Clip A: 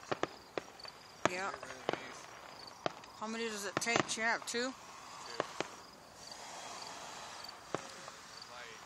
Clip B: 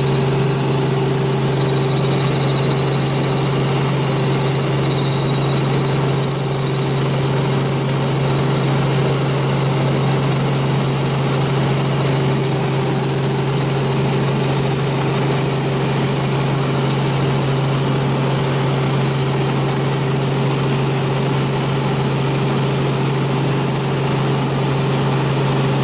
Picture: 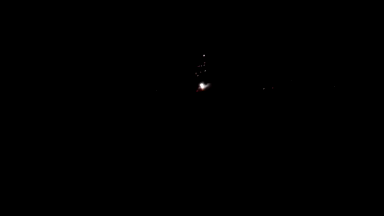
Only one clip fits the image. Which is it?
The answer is A